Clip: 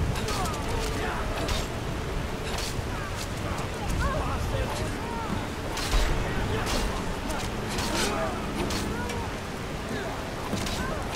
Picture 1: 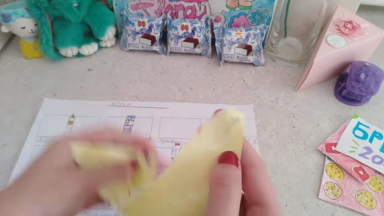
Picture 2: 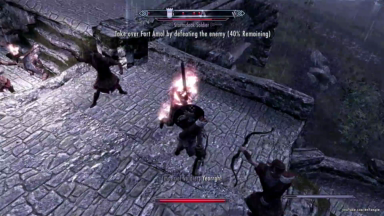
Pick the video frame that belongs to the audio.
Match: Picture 2